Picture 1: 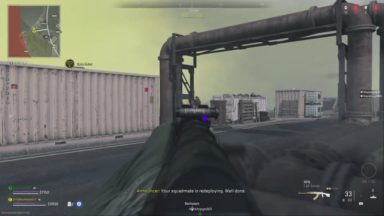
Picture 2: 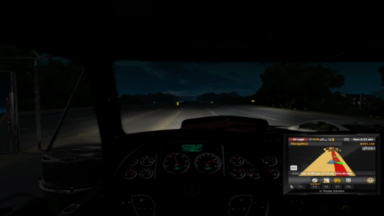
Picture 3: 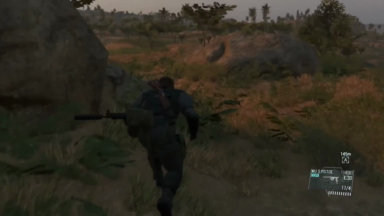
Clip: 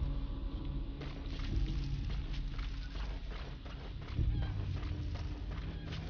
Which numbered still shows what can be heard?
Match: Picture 3